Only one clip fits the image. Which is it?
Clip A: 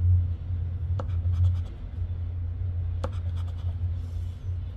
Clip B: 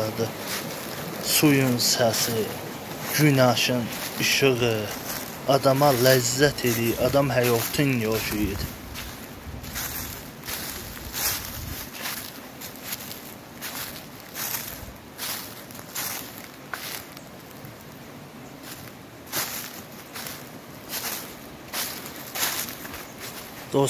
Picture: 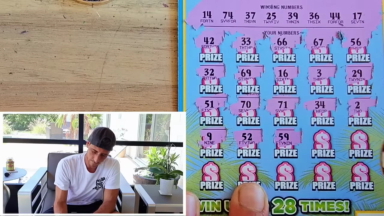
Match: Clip A